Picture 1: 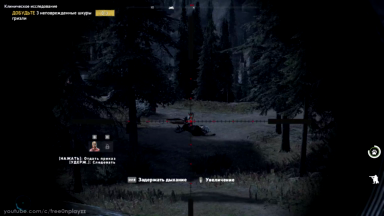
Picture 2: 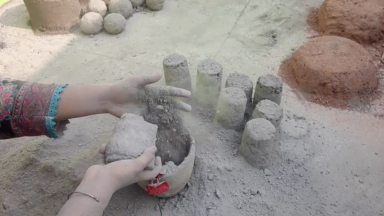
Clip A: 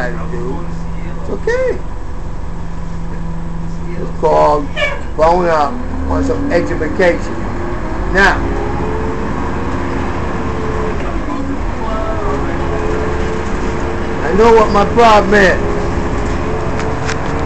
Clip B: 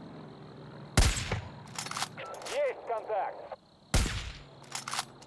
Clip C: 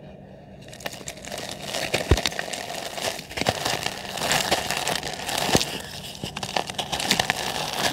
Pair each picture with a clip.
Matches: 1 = B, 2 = C